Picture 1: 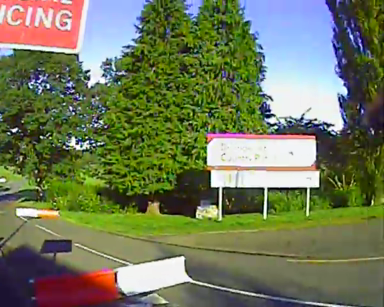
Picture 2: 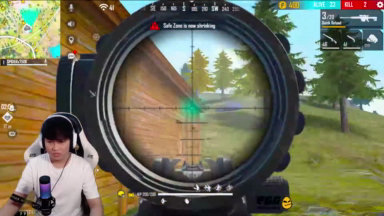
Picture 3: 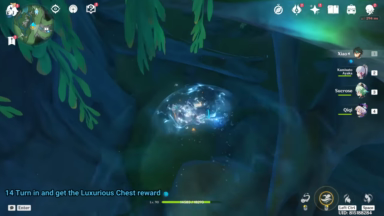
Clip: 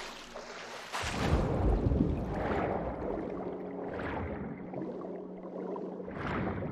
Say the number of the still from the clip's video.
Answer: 3